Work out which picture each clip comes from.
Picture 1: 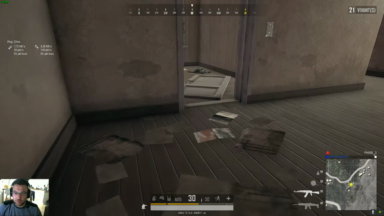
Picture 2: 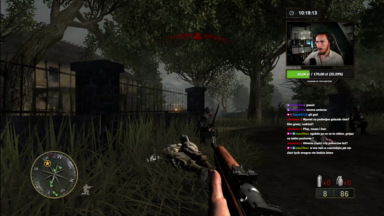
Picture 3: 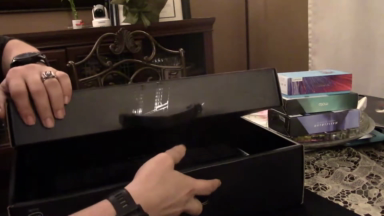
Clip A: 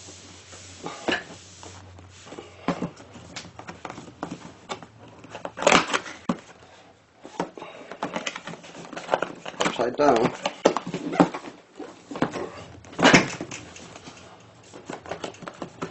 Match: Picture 3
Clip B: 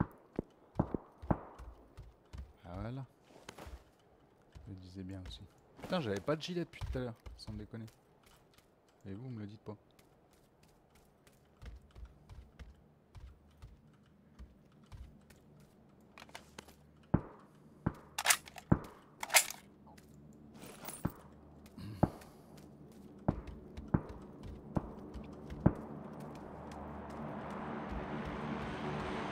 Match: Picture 1